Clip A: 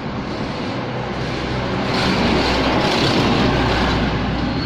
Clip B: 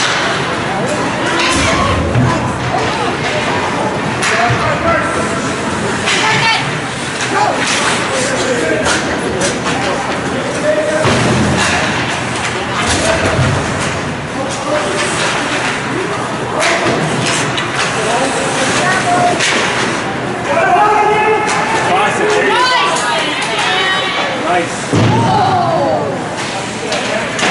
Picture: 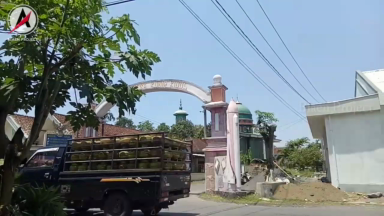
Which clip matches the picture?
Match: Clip A